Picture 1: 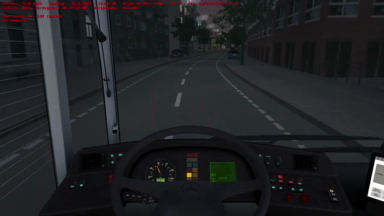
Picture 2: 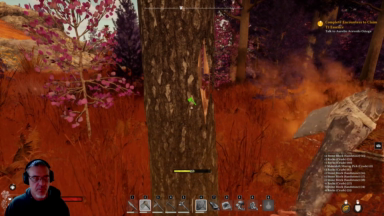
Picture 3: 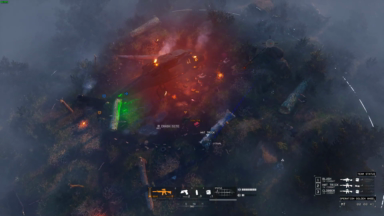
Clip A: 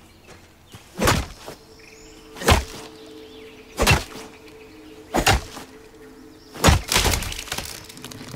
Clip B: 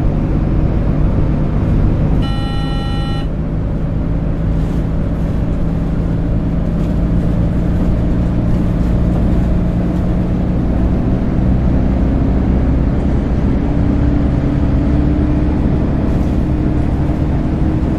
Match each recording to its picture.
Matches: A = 2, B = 1